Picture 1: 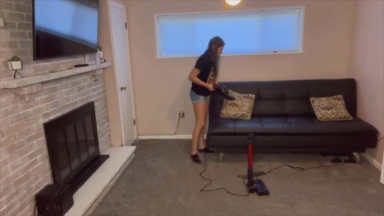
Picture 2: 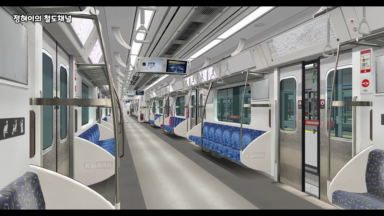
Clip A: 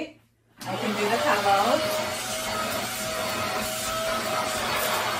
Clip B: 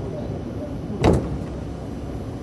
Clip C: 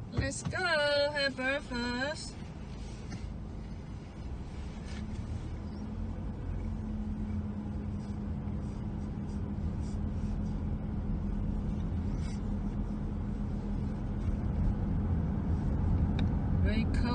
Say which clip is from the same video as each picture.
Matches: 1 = A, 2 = B